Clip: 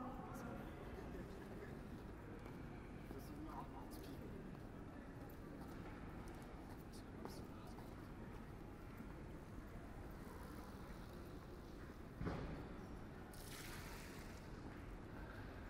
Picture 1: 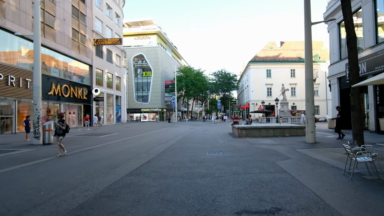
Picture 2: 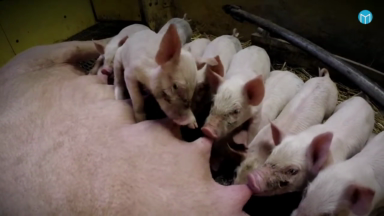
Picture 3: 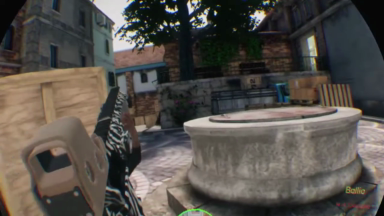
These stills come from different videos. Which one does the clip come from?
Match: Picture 1